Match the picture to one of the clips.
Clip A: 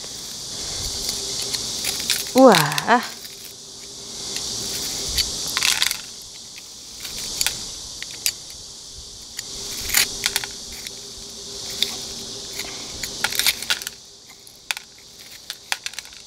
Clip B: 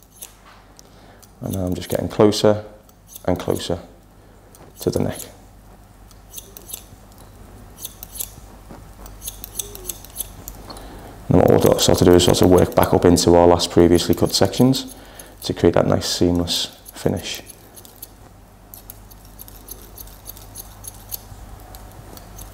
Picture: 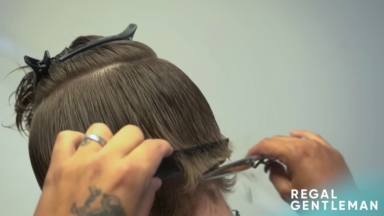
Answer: B